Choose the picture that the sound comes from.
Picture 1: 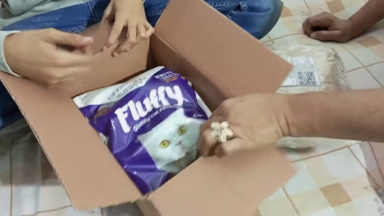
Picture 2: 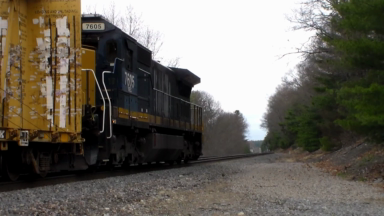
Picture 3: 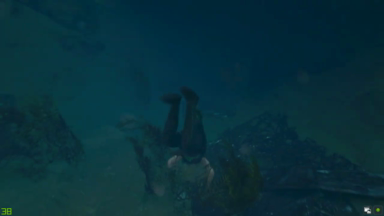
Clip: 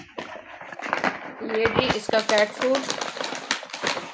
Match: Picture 1